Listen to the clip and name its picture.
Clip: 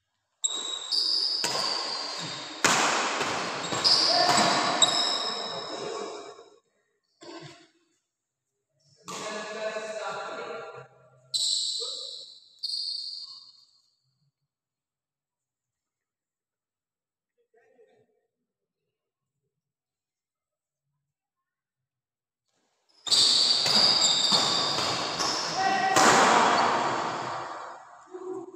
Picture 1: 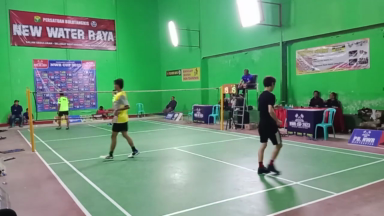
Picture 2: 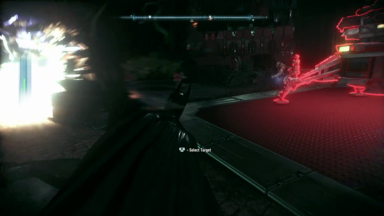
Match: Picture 1